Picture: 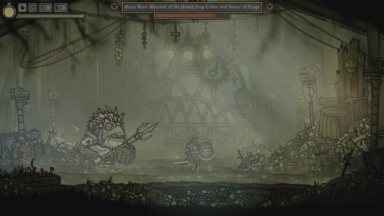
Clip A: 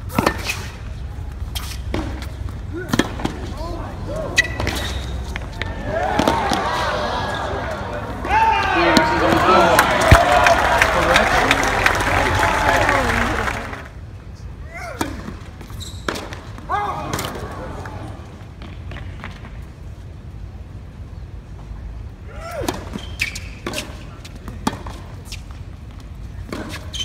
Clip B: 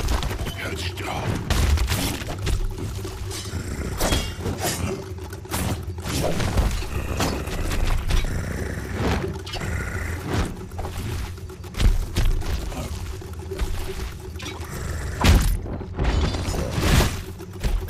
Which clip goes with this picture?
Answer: B